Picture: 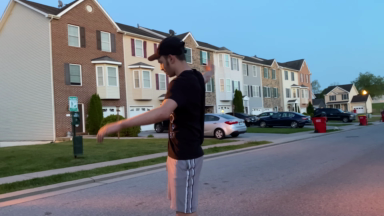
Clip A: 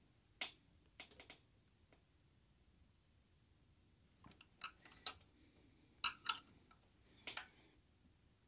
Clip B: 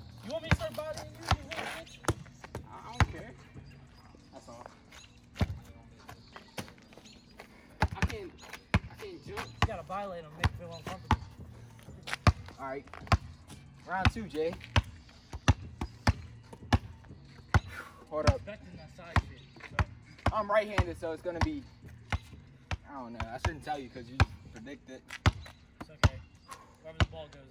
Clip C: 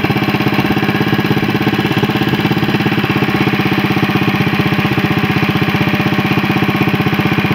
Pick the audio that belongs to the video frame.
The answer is B